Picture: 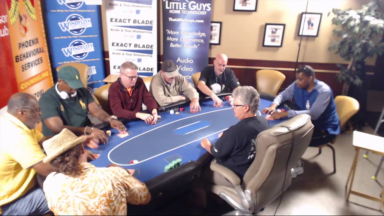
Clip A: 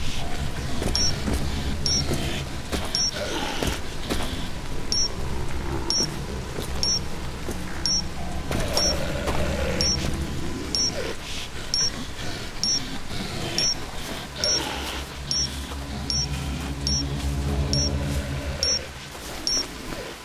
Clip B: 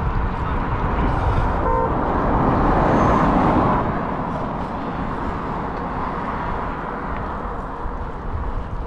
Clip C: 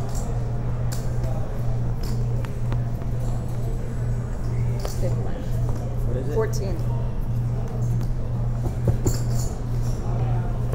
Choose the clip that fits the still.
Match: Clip C